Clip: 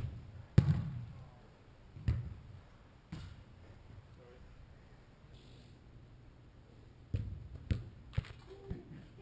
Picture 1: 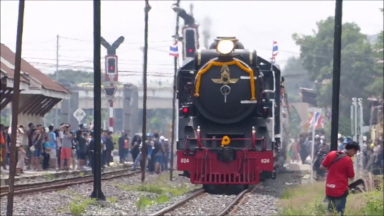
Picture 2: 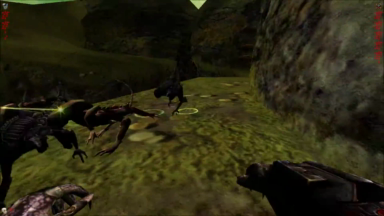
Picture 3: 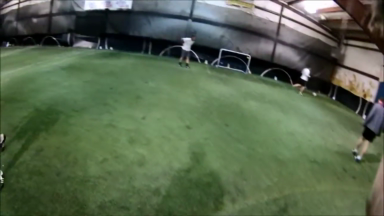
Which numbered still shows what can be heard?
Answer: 3